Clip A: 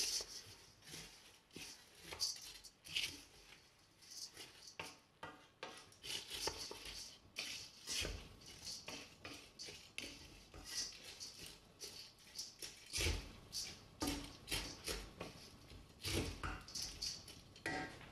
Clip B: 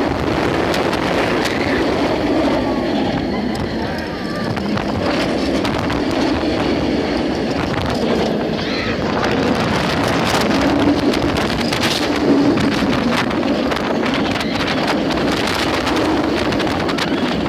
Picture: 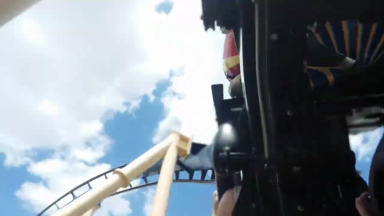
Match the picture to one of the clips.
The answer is B